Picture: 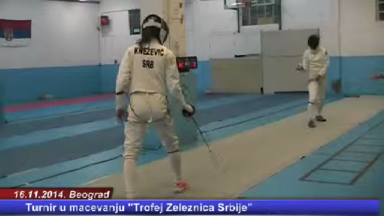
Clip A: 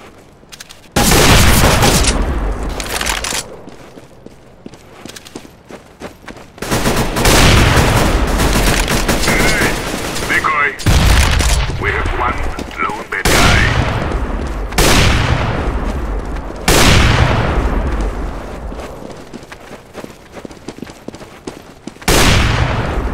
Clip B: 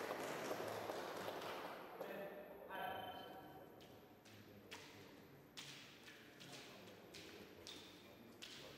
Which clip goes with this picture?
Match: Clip B